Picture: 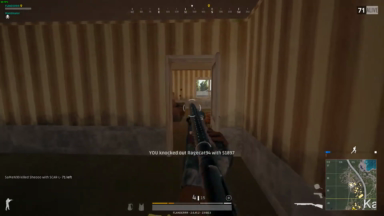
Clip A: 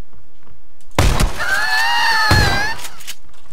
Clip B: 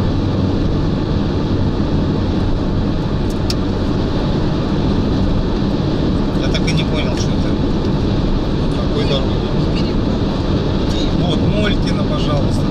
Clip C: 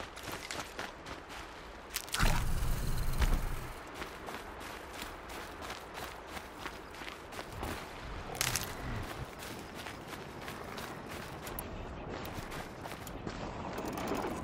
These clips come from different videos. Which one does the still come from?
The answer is A